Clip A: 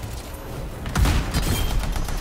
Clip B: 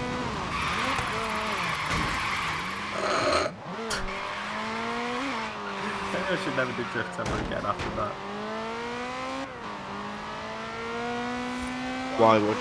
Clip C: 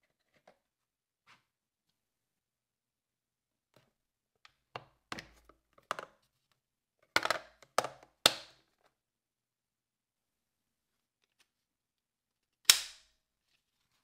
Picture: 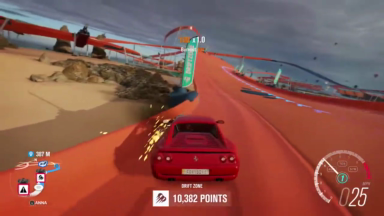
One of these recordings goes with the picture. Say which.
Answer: B